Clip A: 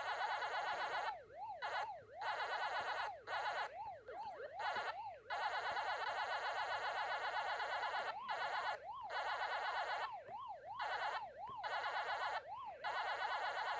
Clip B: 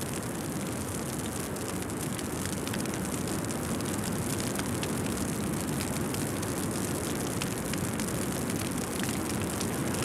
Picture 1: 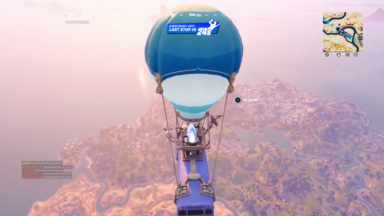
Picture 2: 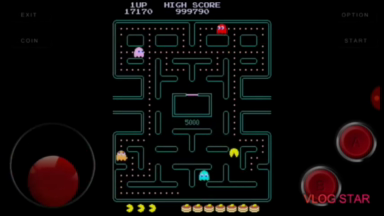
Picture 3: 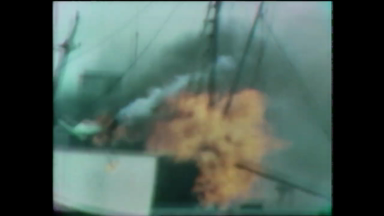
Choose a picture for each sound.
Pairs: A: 2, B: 3